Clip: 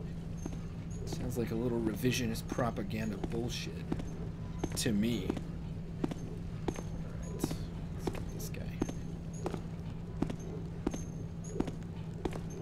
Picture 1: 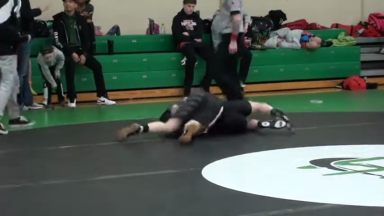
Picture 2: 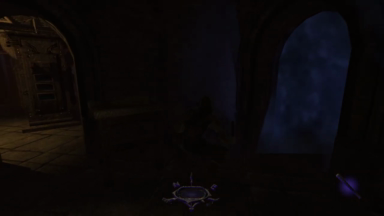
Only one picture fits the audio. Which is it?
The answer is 2